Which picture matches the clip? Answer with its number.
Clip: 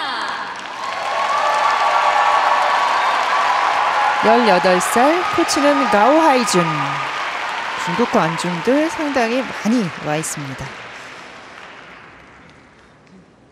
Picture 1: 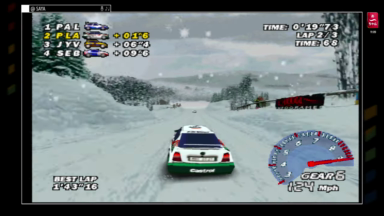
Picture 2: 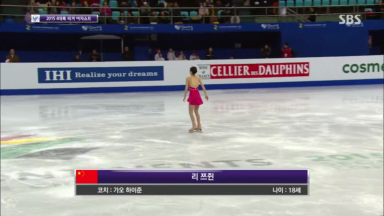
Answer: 2